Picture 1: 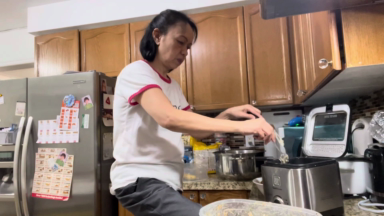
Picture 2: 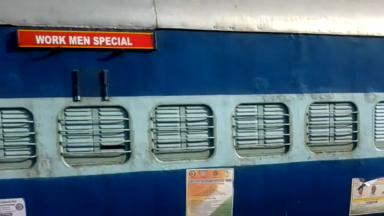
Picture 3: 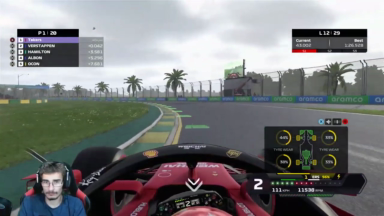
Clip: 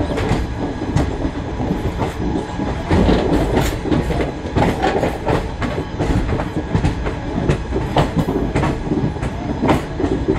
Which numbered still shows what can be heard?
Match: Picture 2